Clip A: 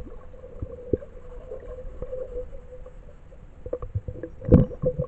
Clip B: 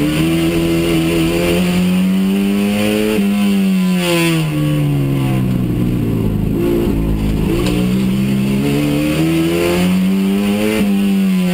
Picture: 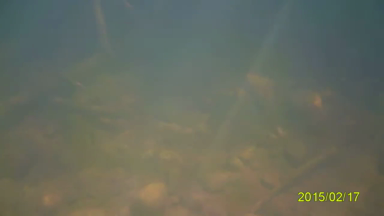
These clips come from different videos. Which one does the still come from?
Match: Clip A